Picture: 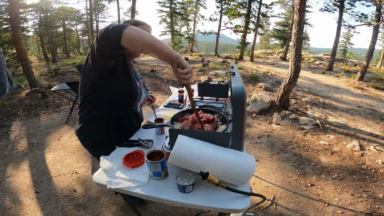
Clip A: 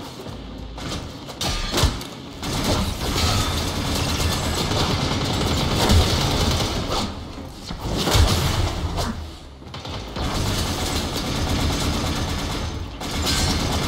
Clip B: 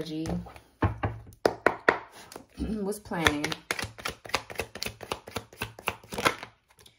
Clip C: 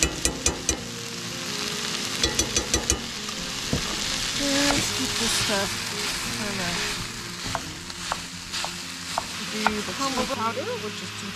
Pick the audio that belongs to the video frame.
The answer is C